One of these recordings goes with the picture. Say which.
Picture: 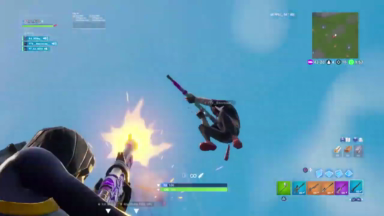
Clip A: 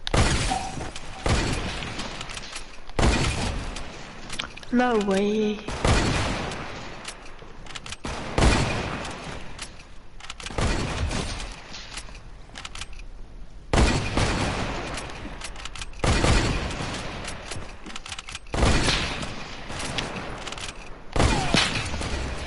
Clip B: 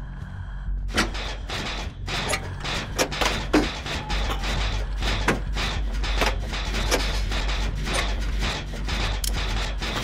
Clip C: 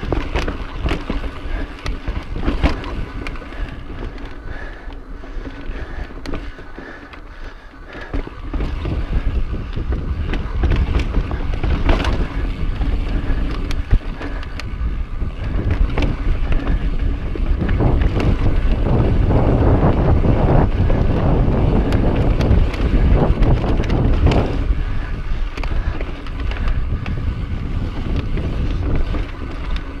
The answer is A